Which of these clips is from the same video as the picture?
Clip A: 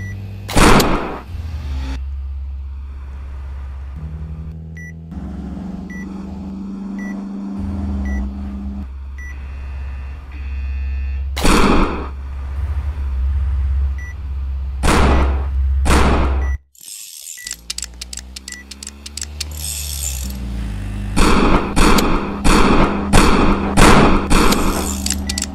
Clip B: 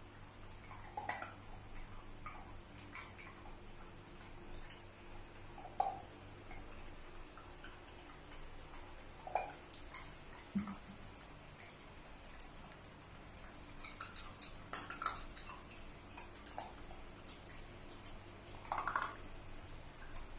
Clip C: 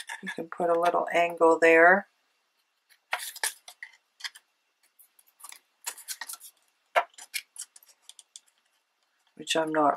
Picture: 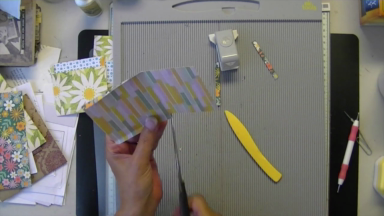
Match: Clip C